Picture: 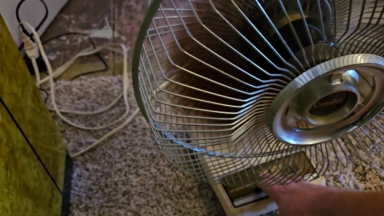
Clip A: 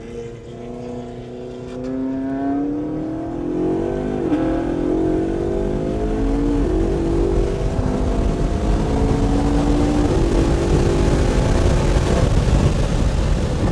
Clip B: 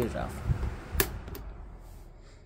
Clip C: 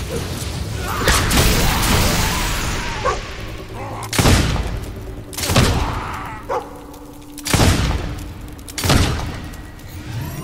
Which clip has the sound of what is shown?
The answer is B